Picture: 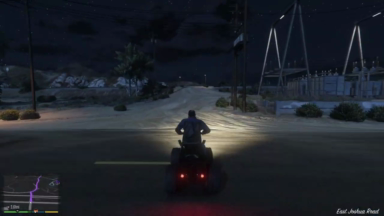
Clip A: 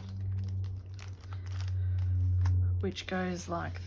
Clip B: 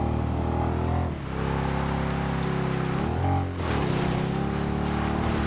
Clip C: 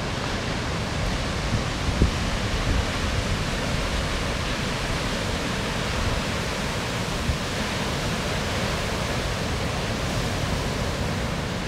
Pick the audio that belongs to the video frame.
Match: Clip B